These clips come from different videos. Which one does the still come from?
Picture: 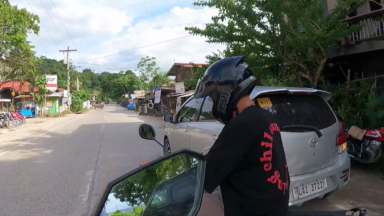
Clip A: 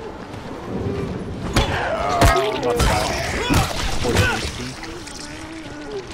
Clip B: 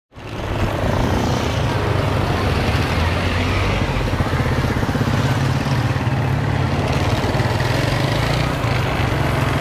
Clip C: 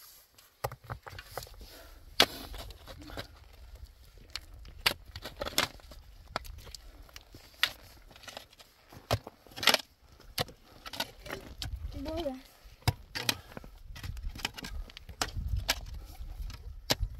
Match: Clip B